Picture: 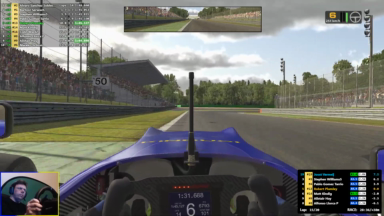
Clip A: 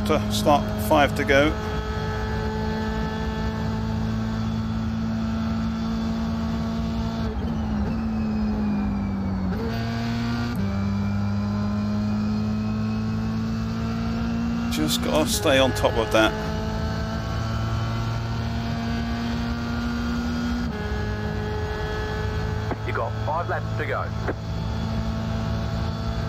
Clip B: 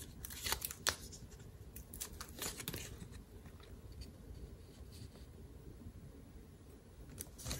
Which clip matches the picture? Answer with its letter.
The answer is A